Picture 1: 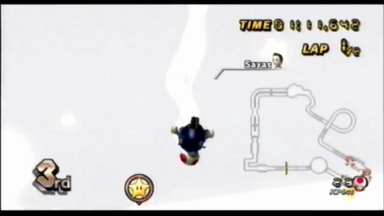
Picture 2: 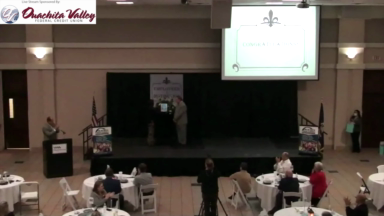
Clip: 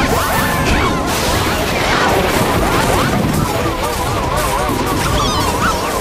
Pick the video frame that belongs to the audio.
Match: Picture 1